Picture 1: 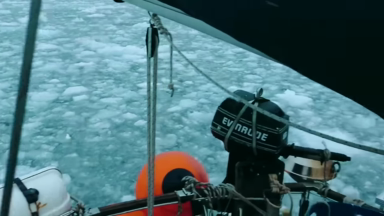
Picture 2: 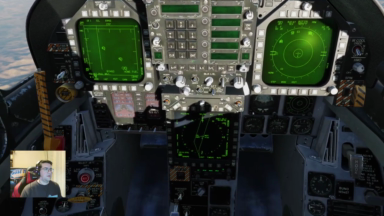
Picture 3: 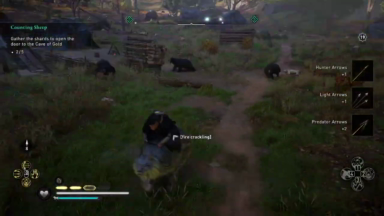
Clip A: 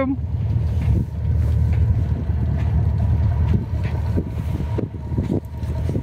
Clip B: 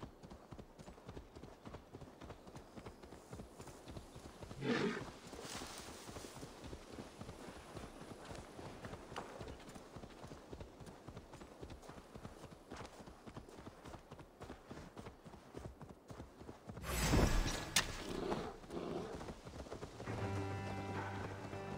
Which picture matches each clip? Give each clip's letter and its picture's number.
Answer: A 1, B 3